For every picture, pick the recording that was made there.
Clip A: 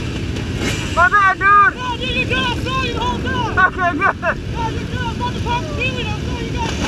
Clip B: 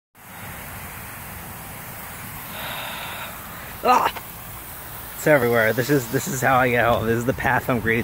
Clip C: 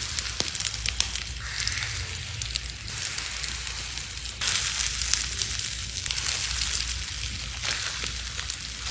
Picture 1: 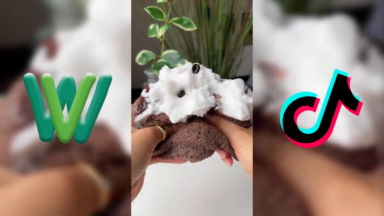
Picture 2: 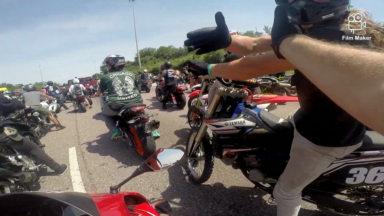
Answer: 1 C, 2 A